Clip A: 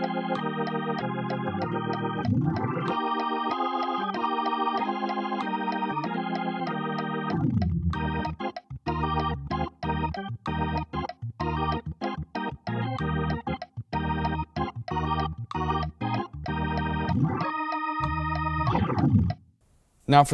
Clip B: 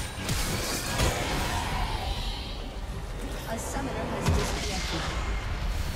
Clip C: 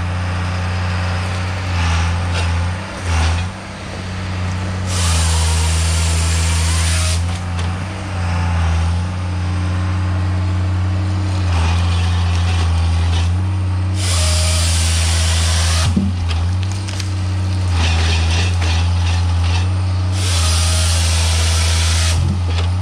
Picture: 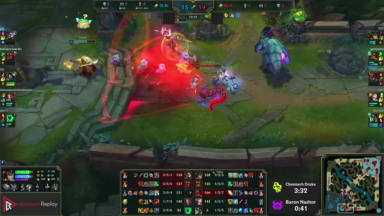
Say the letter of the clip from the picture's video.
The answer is B